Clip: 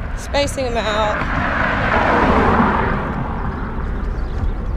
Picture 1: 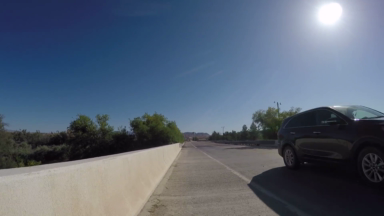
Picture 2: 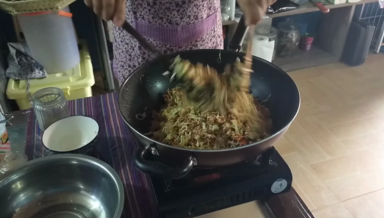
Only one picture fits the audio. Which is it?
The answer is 1